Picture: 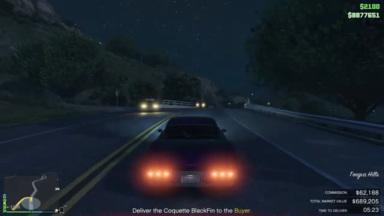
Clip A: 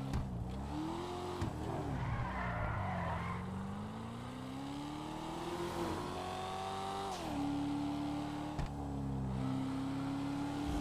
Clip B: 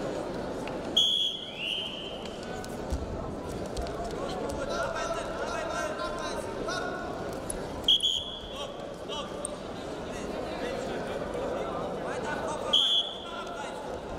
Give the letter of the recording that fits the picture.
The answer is A